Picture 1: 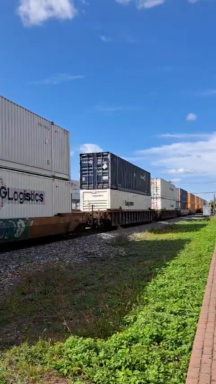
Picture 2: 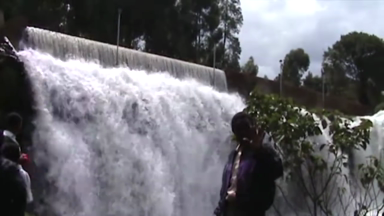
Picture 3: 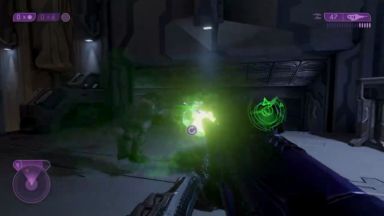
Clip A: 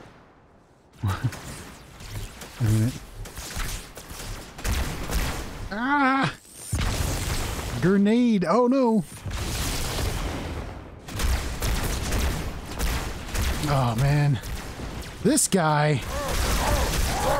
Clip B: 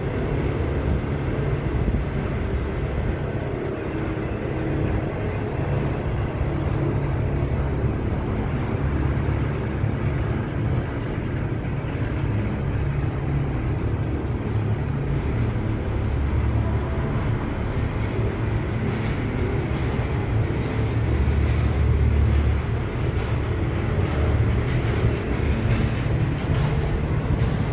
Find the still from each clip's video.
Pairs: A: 3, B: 1